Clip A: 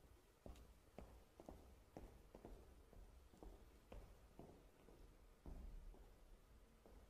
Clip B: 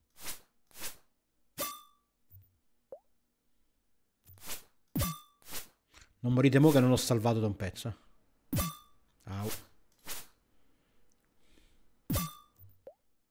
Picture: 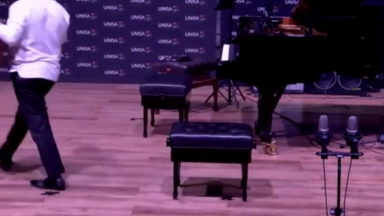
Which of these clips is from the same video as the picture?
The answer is A